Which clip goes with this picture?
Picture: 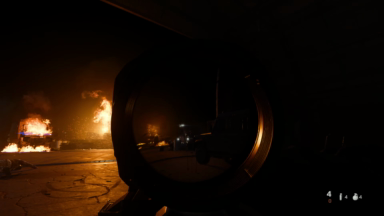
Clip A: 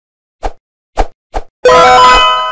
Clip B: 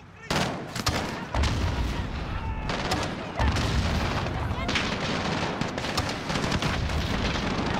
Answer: B